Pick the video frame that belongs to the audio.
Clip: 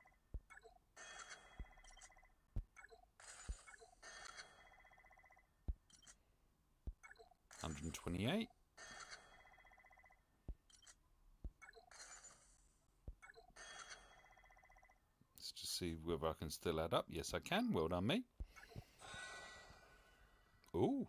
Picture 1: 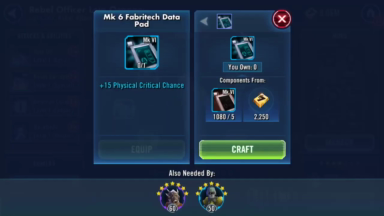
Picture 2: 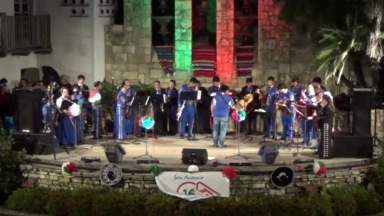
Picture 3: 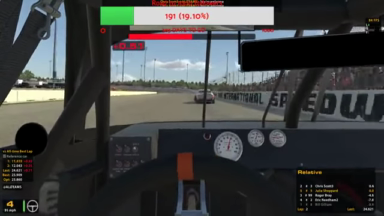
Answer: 1